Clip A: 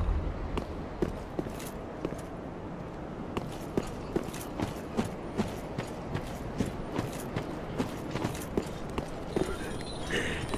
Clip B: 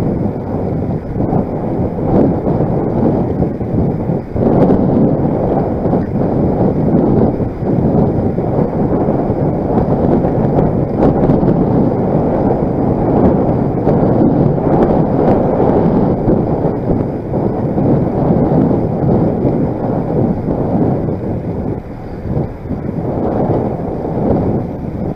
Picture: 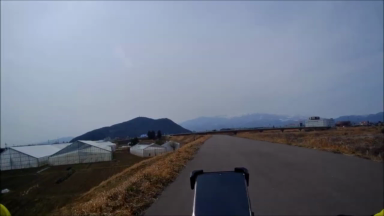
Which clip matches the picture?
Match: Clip B